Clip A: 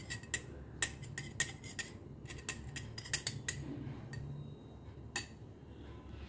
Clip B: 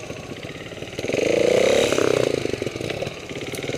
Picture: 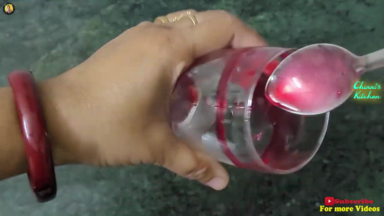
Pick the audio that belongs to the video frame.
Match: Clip A